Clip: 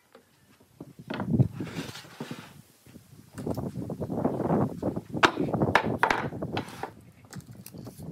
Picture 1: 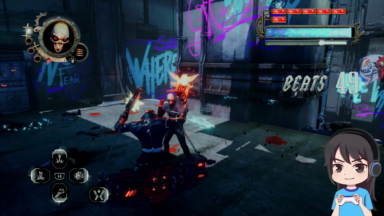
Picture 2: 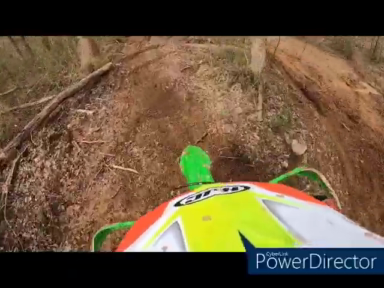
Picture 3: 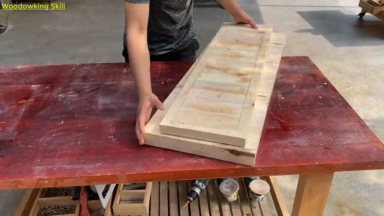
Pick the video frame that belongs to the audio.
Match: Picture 3